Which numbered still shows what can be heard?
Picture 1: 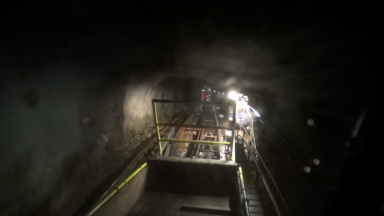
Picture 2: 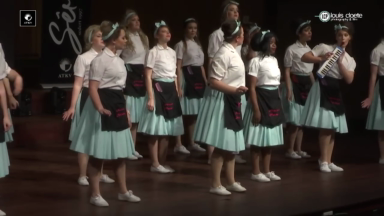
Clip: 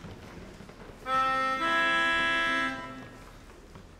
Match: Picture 2